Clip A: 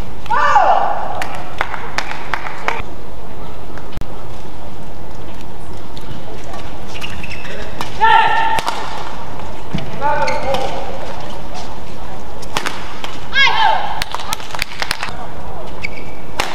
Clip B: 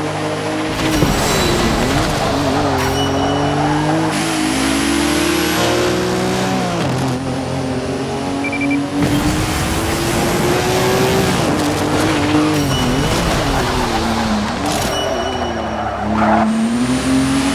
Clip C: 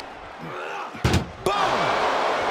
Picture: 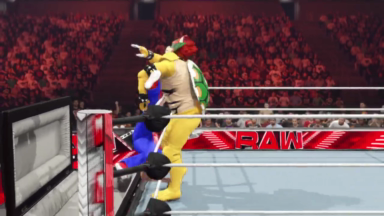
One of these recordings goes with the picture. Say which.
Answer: C